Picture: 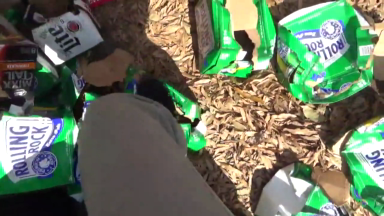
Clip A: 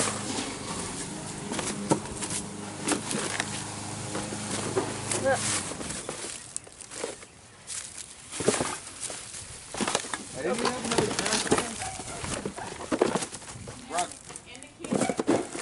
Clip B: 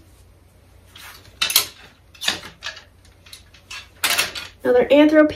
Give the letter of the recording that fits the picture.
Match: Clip A